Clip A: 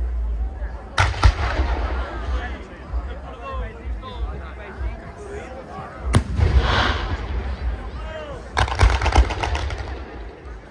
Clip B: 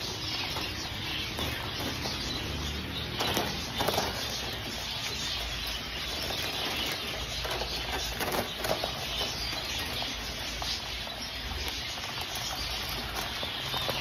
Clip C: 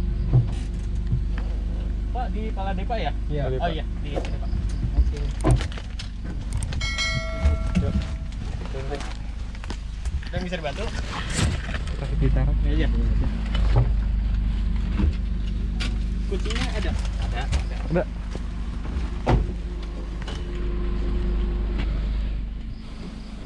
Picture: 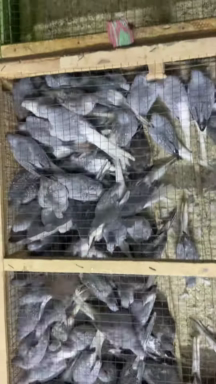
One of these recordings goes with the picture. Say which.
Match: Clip B